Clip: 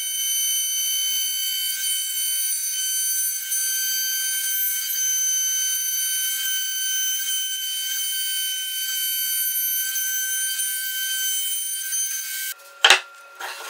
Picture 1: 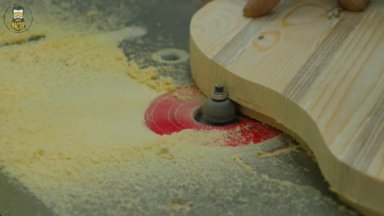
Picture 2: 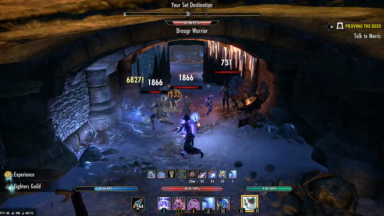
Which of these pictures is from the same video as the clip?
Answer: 1